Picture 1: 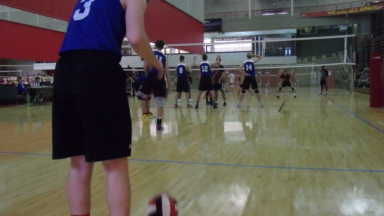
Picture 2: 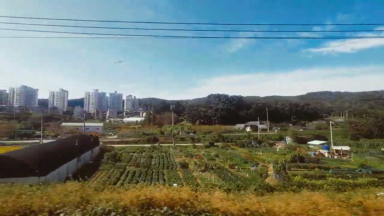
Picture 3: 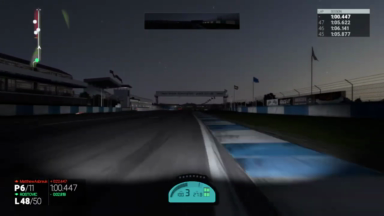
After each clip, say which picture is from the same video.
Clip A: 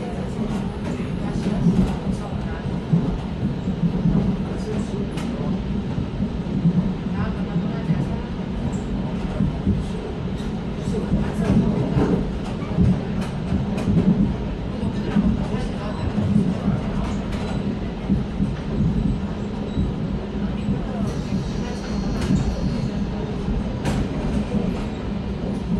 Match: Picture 2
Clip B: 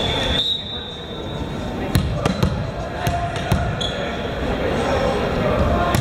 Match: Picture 1